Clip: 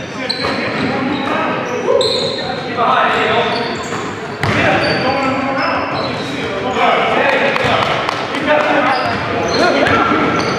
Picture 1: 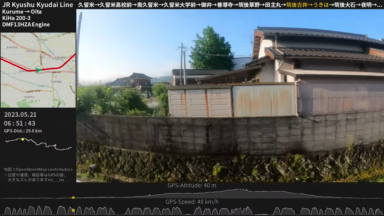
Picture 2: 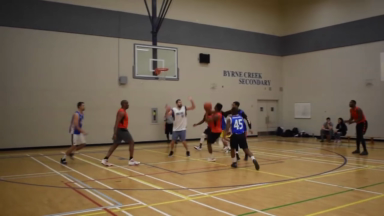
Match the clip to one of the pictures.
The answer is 2